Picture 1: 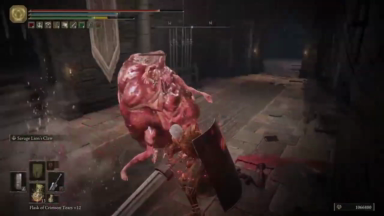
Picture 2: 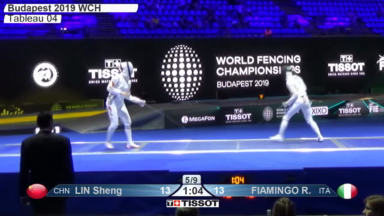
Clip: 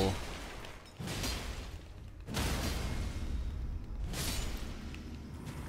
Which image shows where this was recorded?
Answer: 1